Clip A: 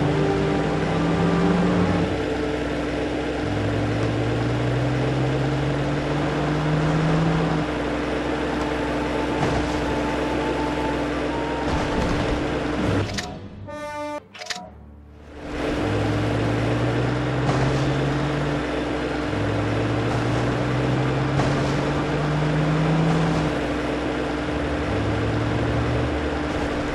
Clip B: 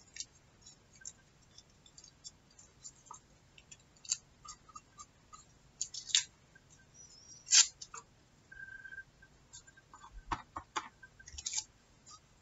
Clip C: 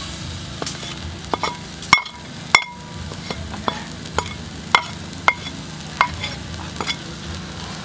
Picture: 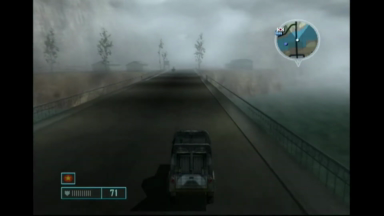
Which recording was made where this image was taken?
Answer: A